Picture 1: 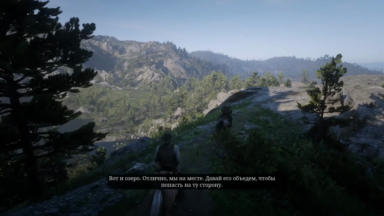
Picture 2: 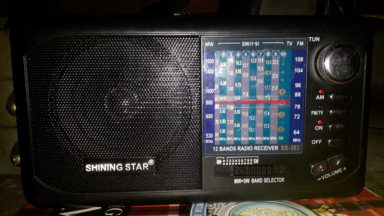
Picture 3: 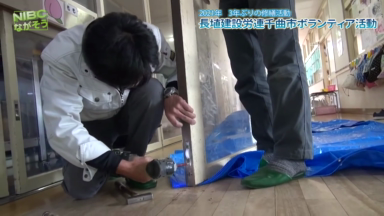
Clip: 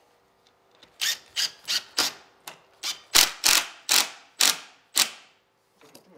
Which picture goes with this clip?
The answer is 3